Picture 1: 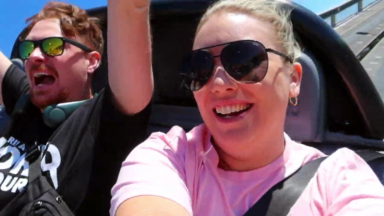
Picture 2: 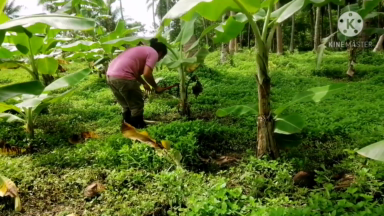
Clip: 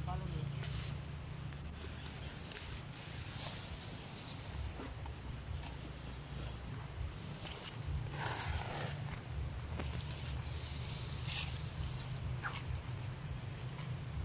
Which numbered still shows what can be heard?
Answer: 2